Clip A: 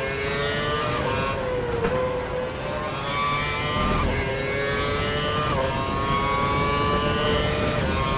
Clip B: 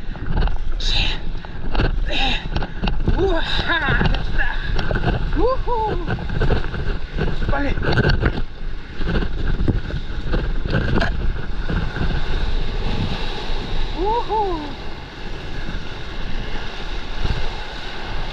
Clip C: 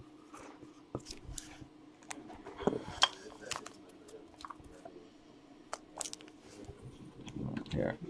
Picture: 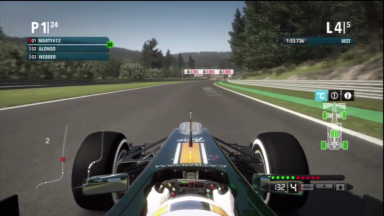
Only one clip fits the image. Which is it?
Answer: A